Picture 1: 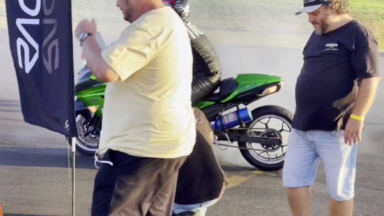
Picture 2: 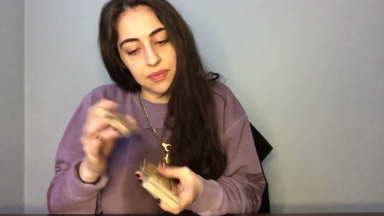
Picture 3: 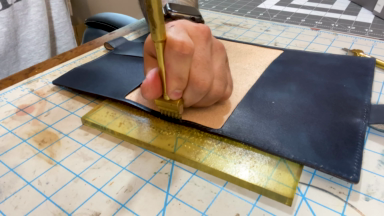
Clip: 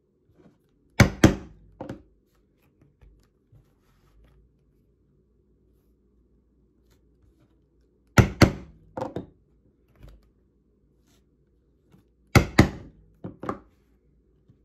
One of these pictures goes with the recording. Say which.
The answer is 3